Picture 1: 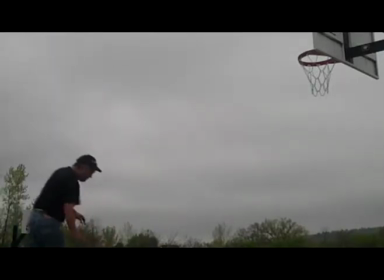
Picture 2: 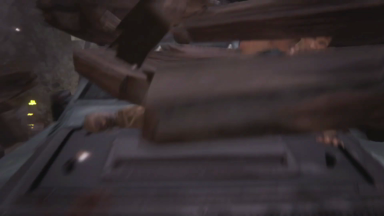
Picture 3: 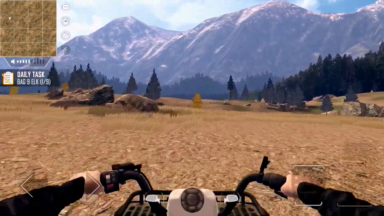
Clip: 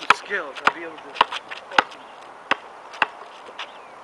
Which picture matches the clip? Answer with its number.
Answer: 1